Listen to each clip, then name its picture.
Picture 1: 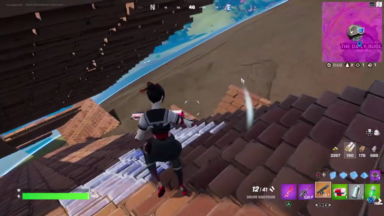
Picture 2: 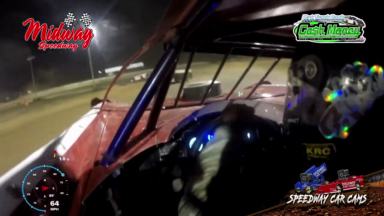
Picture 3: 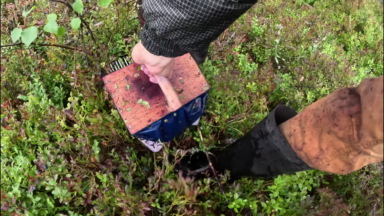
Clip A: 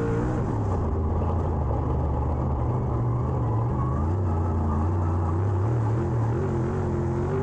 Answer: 2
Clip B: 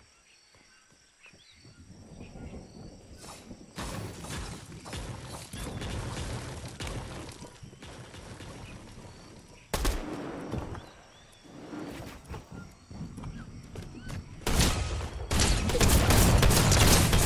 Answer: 1